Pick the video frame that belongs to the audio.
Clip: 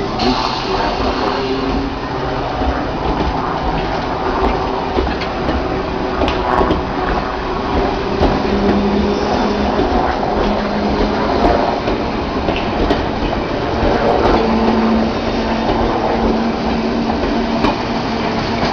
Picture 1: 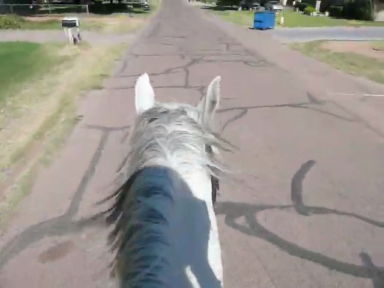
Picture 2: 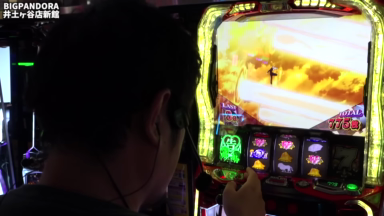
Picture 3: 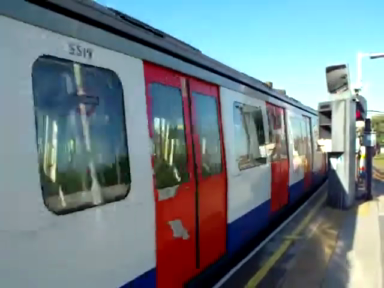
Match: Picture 3